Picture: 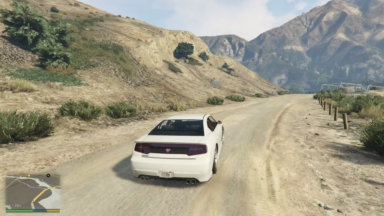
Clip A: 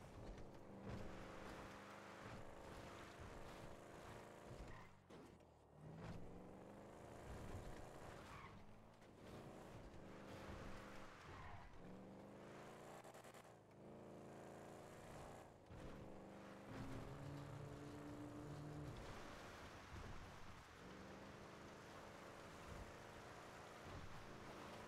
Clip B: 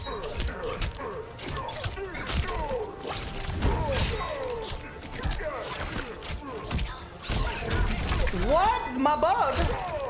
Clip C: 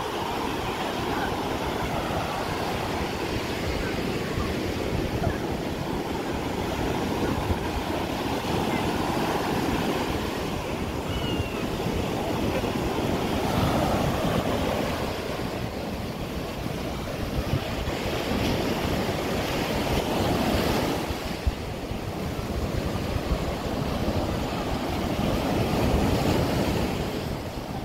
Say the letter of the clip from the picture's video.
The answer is A